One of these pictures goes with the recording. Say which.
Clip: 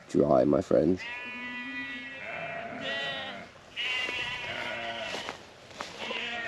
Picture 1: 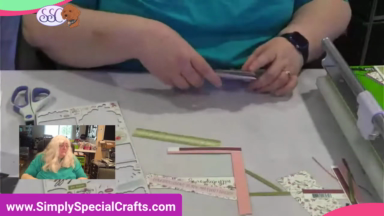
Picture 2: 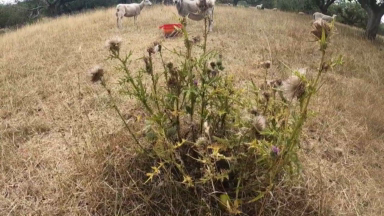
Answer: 2